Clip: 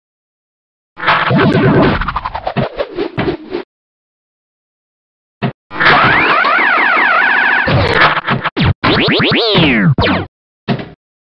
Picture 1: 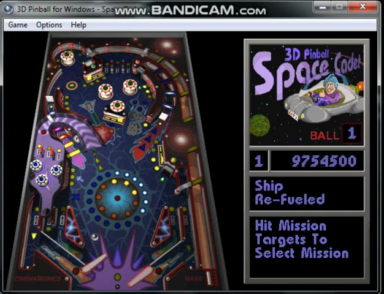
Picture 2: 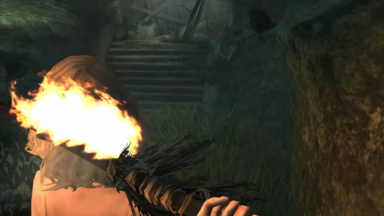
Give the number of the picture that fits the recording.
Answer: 1